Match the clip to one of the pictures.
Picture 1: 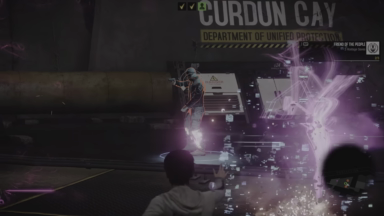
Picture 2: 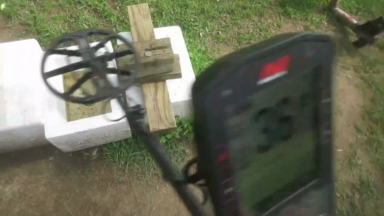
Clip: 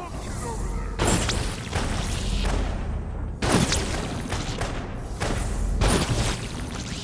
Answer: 1